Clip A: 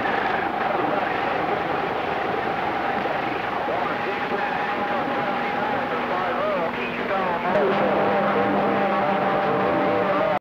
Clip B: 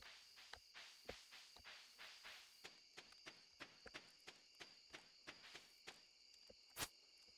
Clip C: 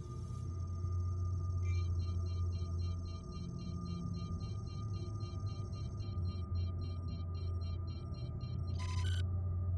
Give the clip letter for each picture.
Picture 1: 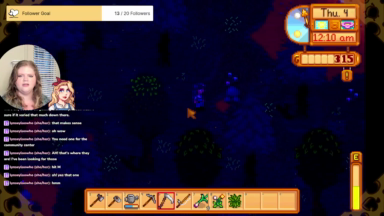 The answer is B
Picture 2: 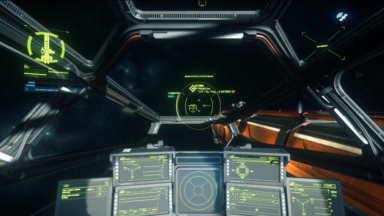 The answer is C